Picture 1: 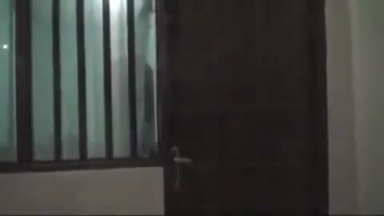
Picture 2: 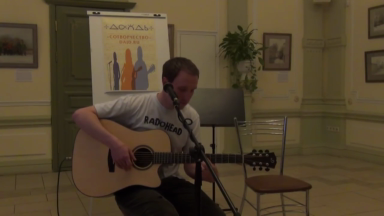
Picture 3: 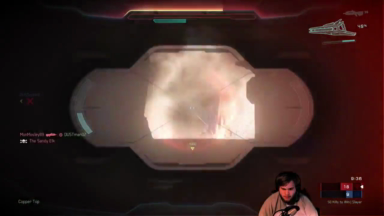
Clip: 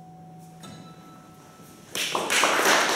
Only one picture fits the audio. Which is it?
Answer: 2